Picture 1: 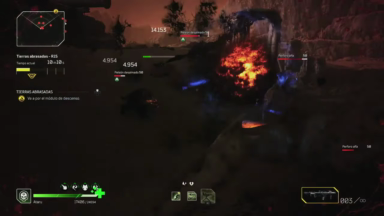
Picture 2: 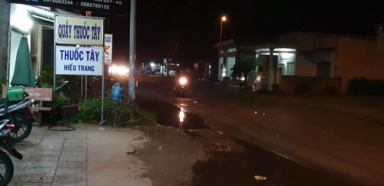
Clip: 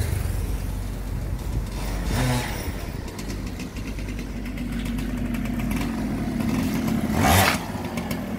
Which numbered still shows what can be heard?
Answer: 2